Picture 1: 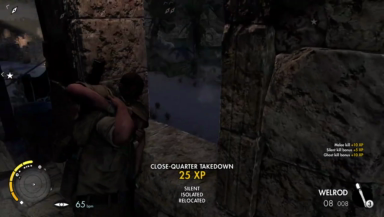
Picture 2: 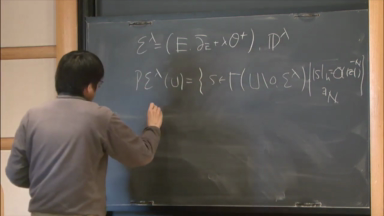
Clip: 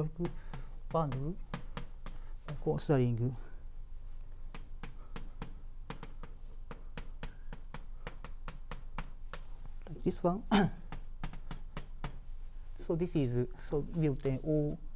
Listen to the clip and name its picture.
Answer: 2